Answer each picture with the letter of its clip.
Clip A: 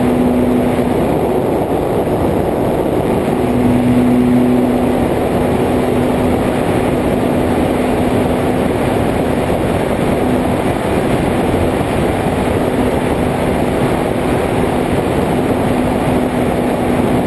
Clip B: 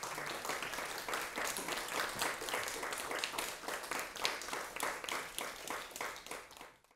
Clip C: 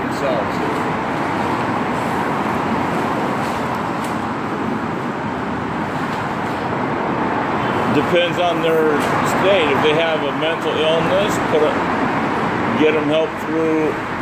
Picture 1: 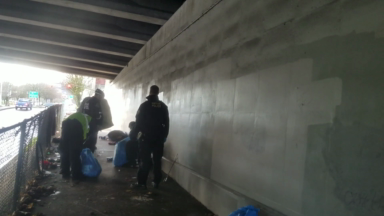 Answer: C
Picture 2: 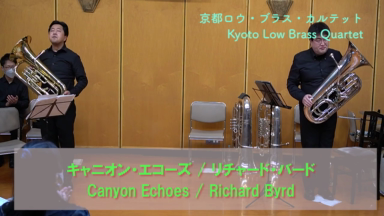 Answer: B